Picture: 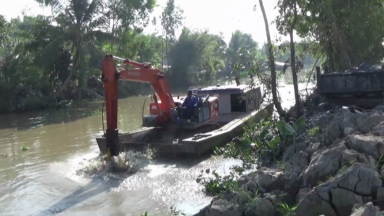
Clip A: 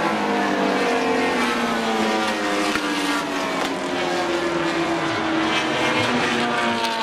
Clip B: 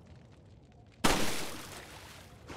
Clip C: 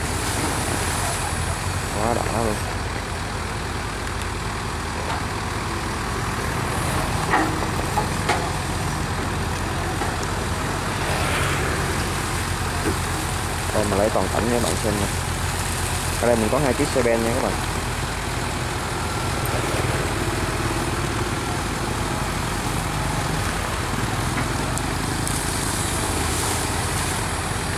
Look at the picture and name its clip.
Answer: C